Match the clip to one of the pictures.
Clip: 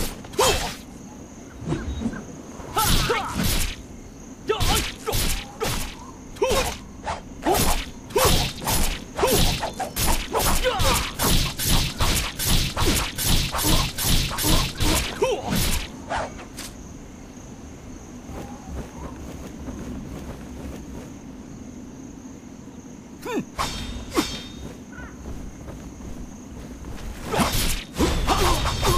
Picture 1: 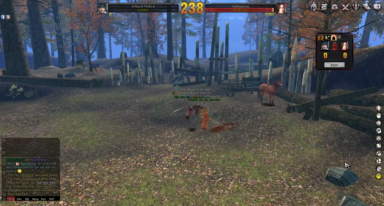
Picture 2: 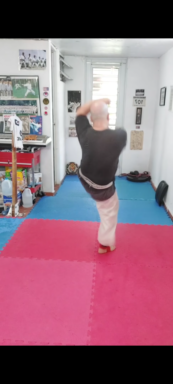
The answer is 1